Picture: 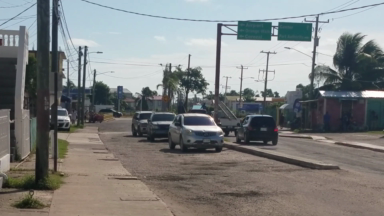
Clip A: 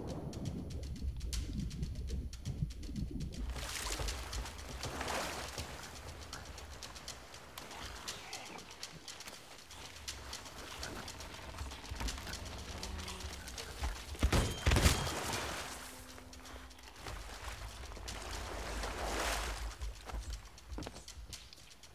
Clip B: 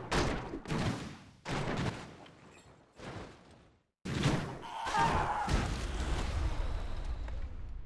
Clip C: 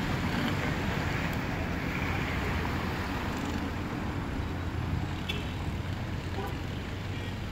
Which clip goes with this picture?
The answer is C